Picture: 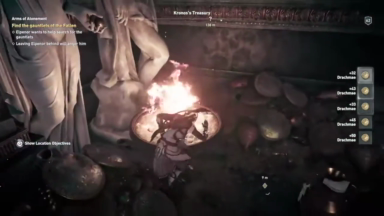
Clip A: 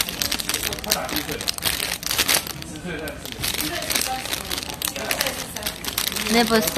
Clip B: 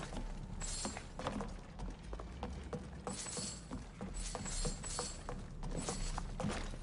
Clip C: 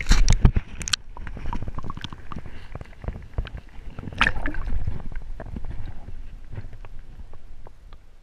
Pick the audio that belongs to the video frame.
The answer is B